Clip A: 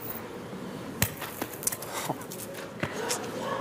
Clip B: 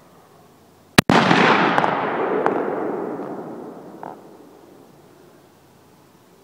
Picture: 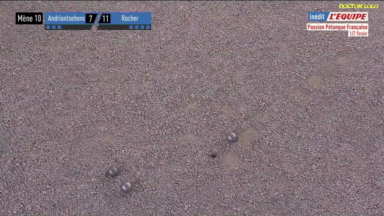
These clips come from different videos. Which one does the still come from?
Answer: A